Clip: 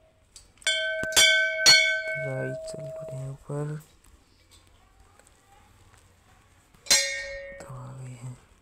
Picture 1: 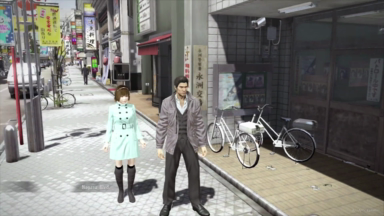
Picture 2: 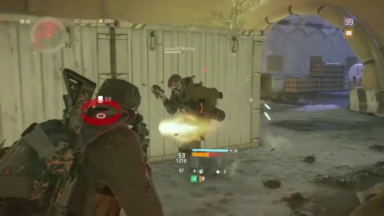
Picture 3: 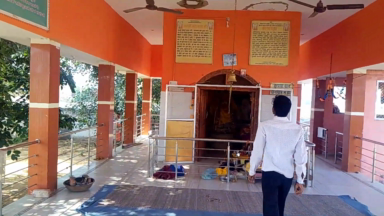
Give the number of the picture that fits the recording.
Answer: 3